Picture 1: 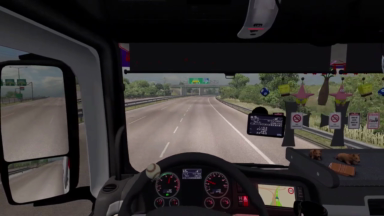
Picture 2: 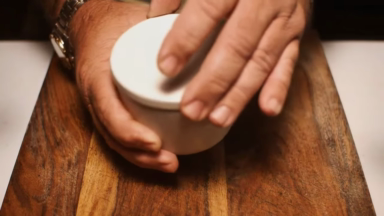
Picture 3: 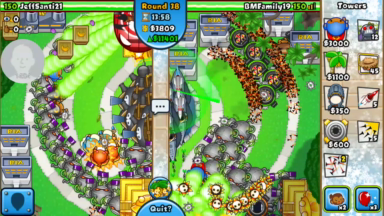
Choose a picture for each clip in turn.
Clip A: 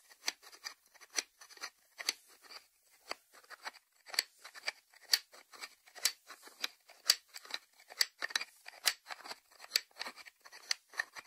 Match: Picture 2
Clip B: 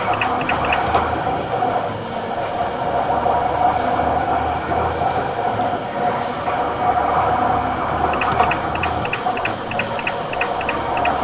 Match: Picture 1